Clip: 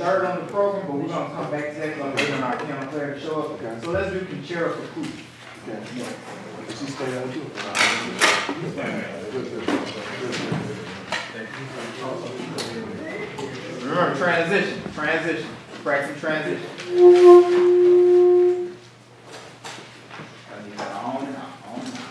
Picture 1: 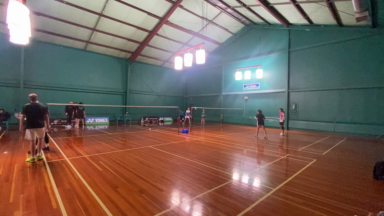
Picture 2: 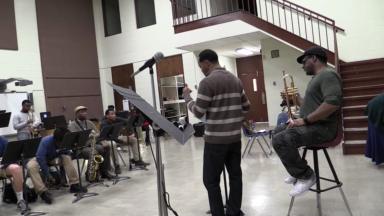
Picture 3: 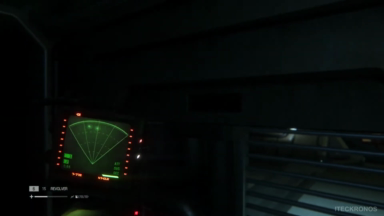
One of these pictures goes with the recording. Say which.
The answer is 2